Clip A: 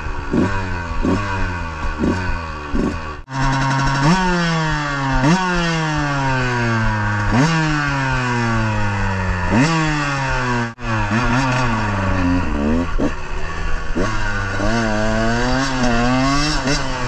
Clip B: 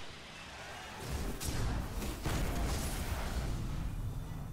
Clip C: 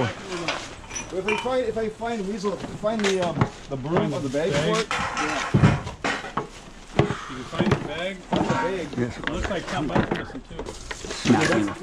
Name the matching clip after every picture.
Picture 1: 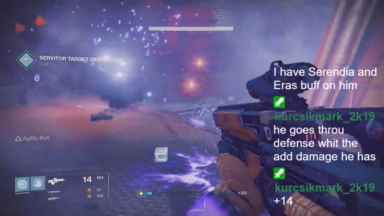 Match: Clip B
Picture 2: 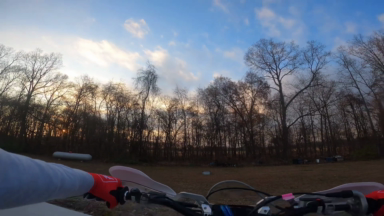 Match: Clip A